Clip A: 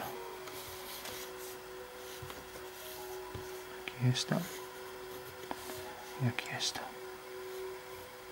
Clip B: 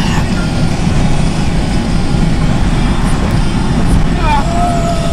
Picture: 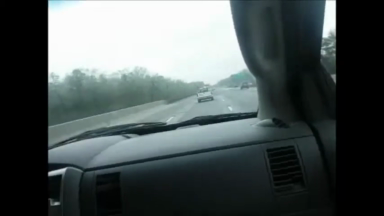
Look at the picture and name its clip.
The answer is B